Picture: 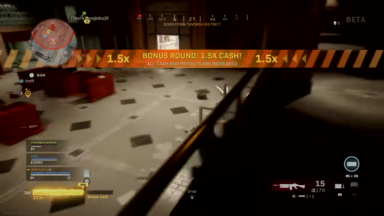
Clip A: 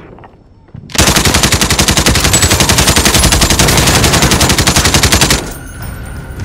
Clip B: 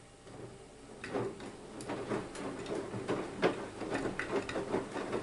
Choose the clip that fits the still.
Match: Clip A